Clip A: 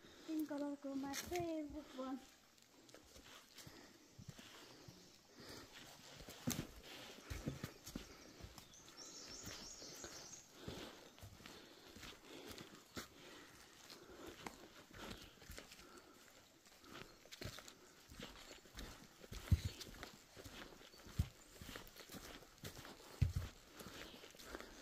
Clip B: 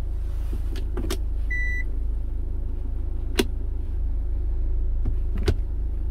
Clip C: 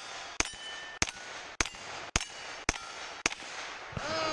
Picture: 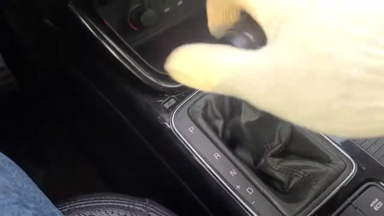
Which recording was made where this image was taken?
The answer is B